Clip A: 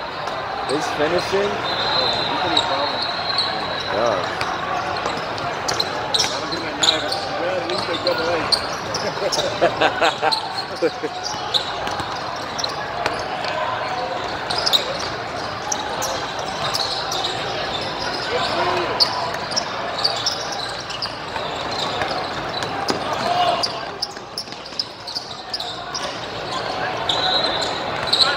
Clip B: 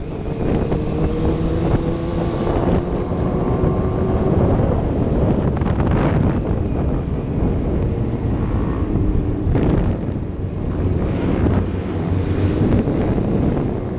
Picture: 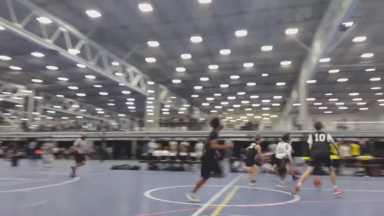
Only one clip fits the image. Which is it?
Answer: A